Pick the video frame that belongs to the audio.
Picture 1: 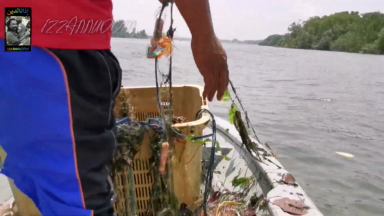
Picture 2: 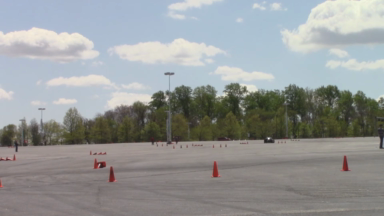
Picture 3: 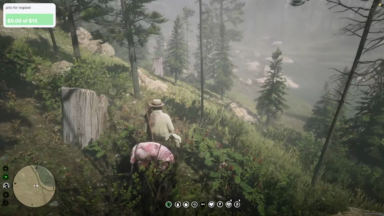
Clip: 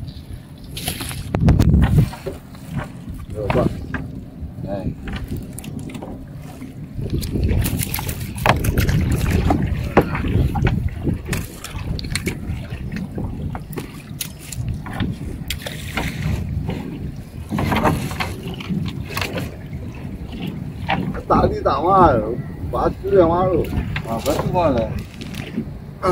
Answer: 1